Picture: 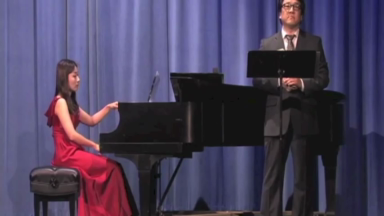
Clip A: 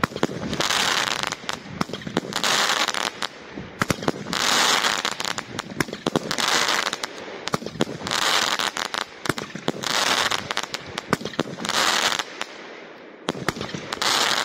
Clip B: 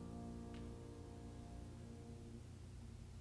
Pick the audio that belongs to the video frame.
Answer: B